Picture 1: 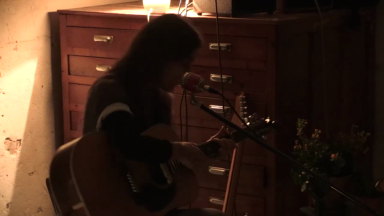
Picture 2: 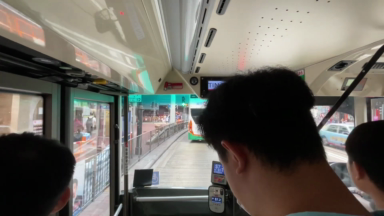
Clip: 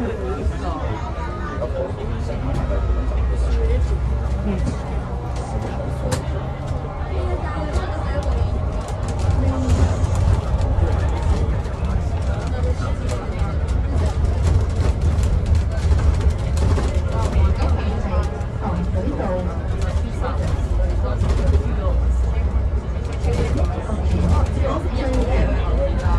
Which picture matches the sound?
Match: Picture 2